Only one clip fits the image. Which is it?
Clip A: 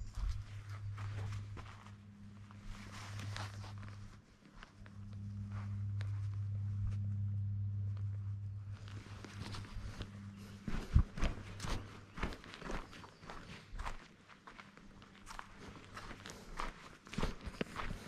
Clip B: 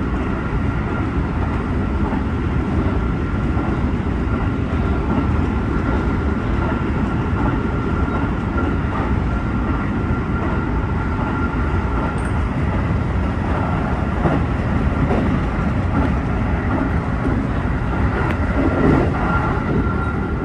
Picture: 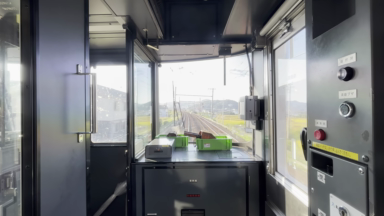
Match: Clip B